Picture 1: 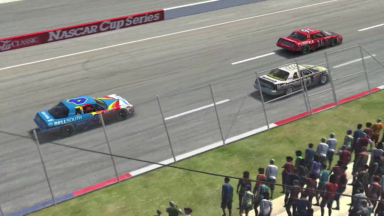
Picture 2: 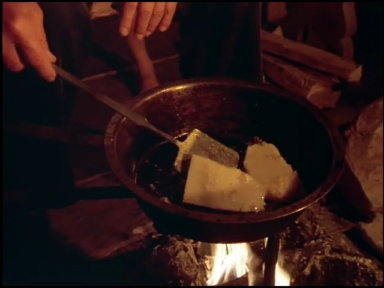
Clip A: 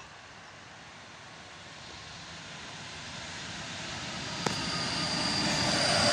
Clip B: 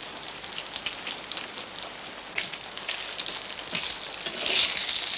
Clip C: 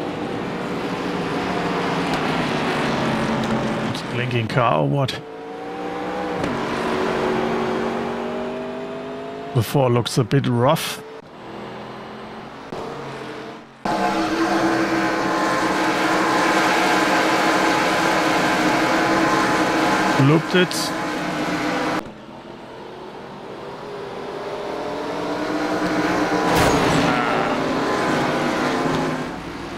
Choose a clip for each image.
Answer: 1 C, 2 B